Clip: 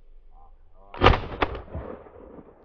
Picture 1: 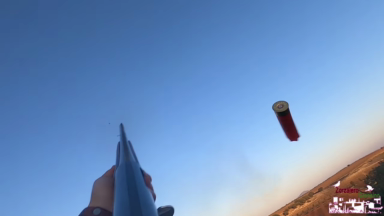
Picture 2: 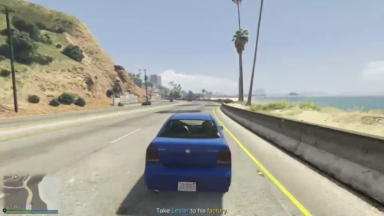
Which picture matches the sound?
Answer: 1